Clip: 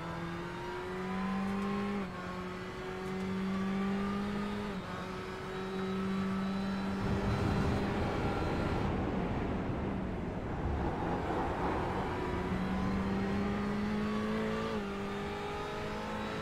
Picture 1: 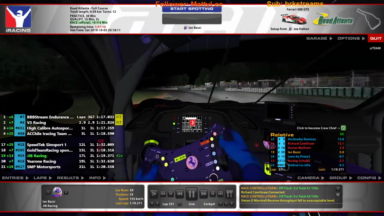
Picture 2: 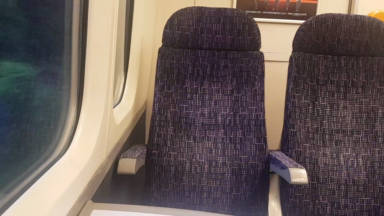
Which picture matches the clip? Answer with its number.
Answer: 1